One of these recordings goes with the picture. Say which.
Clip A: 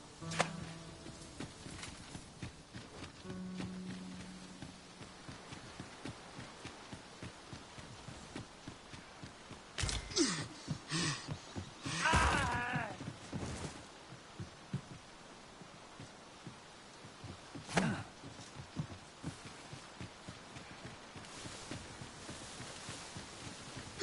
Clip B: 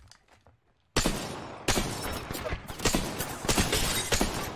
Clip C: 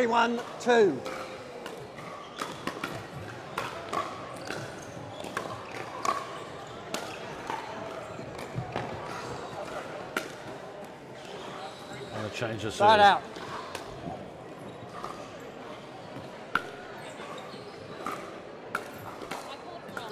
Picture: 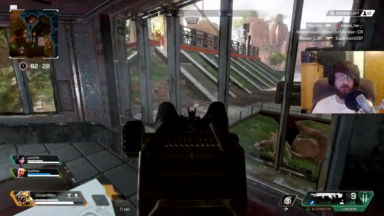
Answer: B